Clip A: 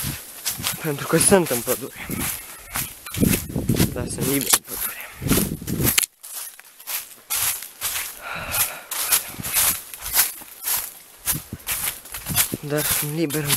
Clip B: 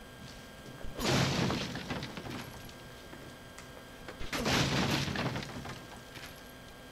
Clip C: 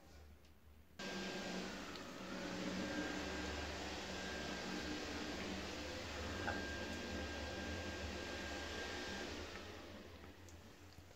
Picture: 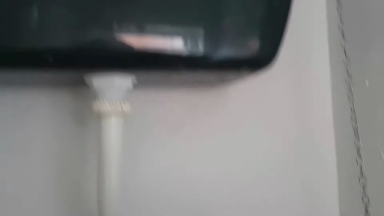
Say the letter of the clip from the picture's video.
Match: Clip C